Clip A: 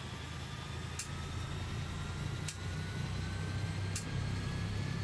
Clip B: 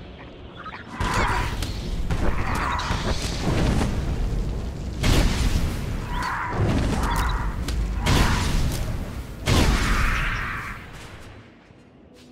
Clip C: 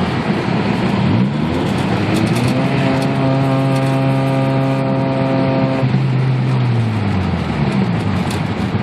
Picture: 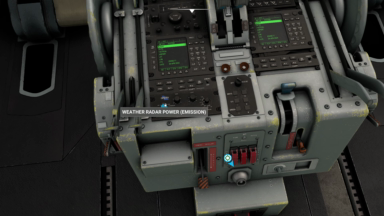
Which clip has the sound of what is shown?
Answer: A